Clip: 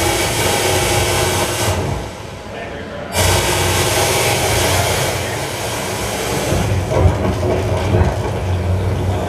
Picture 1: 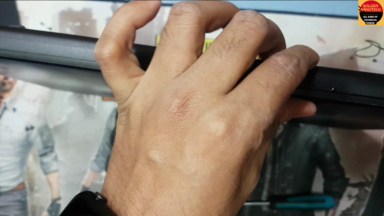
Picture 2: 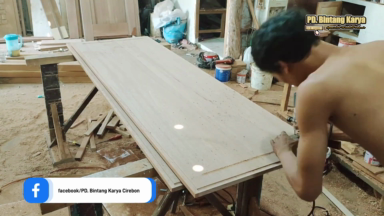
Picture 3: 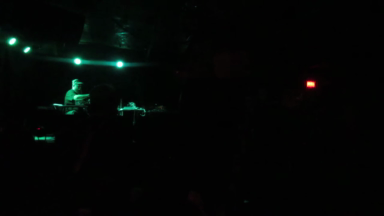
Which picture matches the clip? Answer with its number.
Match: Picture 3